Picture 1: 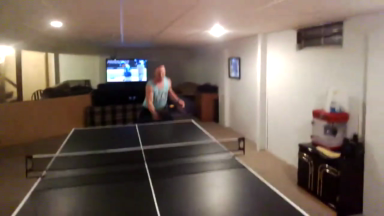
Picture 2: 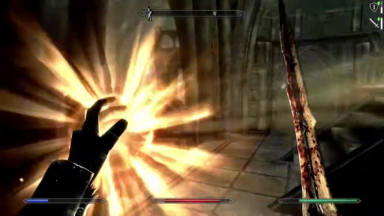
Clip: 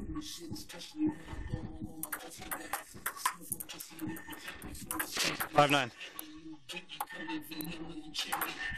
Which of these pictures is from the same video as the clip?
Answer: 1